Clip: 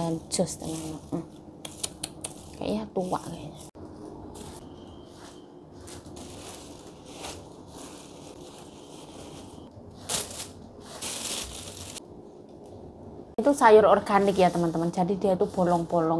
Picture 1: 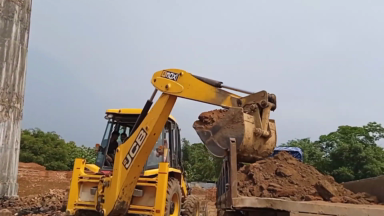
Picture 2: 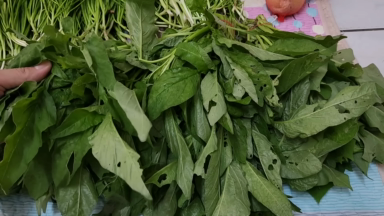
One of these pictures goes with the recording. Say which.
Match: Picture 2